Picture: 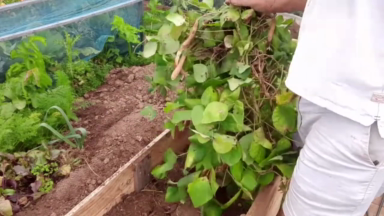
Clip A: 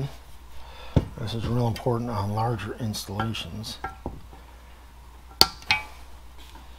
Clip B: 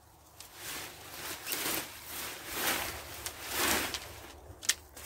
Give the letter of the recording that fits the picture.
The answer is B